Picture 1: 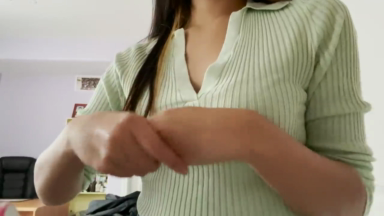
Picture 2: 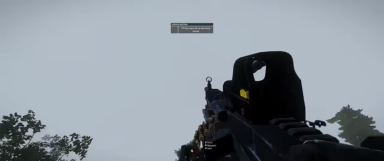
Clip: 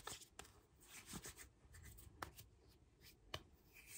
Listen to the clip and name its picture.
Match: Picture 1